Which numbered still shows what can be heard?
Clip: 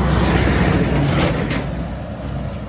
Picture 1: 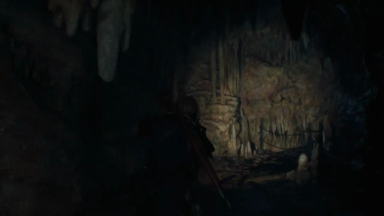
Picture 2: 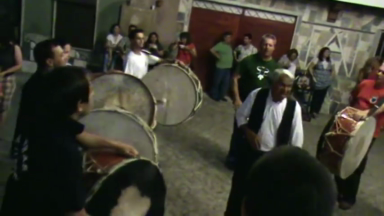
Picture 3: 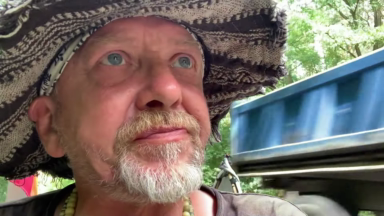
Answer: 3